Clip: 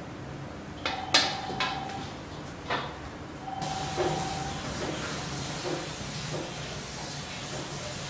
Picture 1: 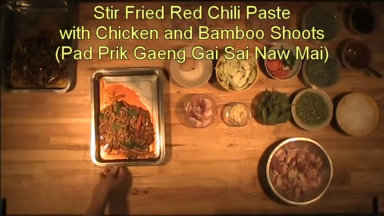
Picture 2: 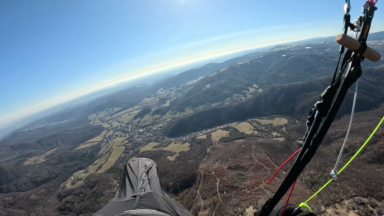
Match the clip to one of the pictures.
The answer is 1